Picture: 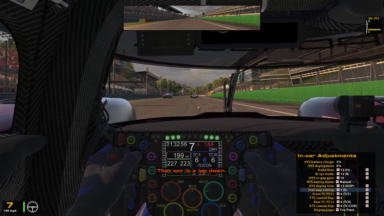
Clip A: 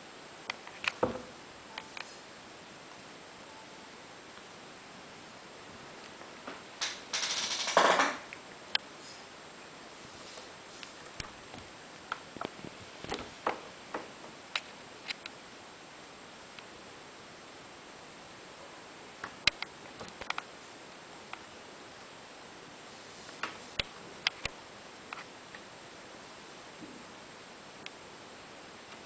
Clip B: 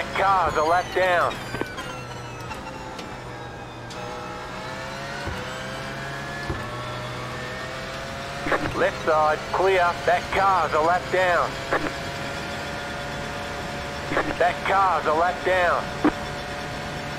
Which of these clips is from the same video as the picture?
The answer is B